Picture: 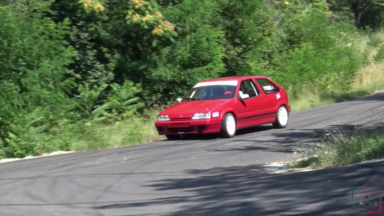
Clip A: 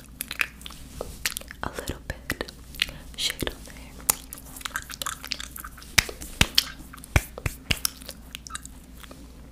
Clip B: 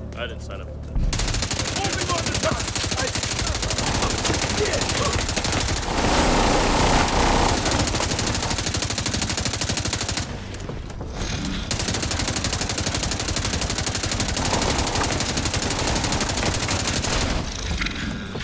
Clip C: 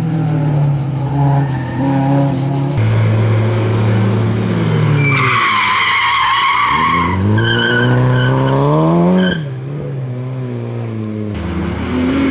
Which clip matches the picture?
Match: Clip C